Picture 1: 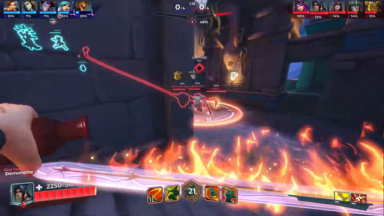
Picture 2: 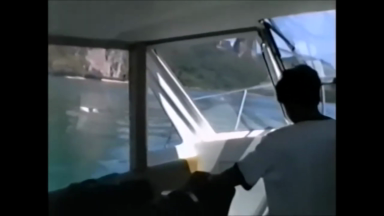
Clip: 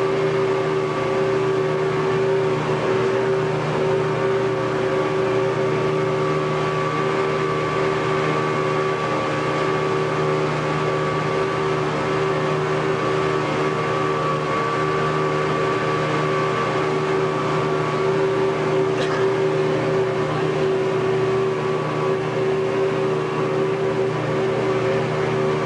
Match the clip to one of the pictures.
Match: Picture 2